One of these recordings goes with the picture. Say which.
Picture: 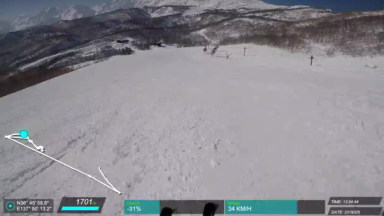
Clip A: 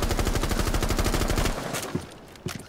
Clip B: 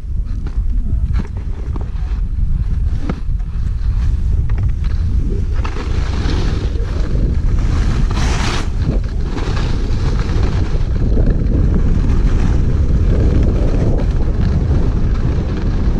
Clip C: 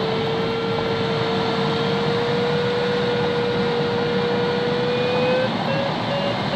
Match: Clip B